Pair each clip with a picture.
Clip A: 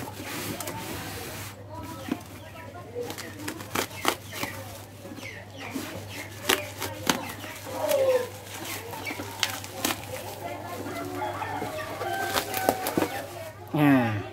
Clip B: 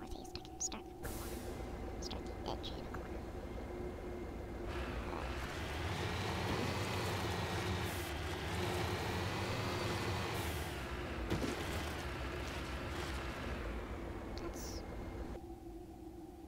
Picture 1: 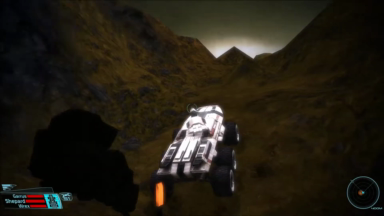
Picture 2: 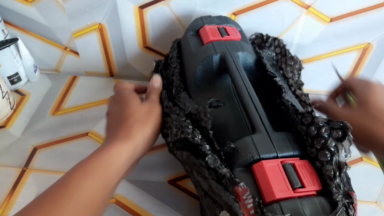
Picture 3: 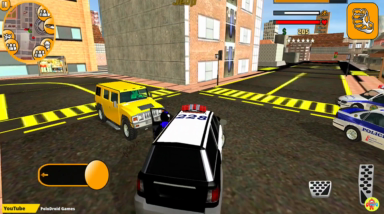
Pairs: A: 2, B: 1